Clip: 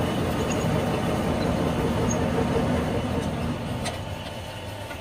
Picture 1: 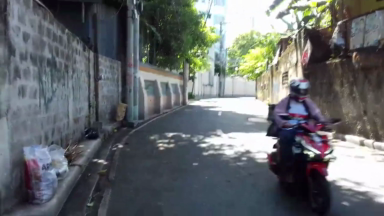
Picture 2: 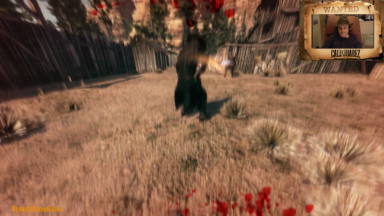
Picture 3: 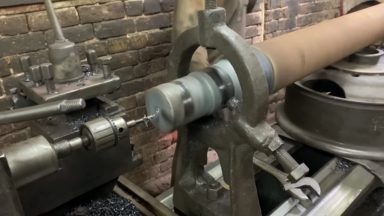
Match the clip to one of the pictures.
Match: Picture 3